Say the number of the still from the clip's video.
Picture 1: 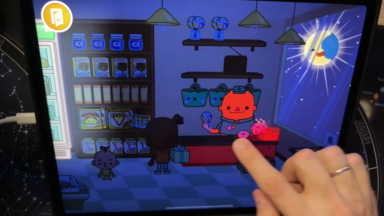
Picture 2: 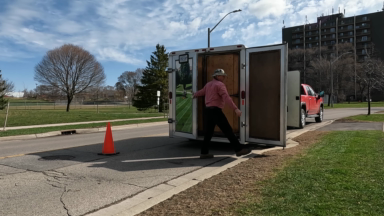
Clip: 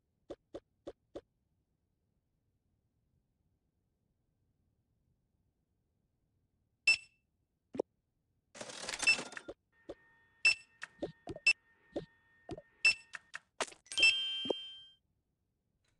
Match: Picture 1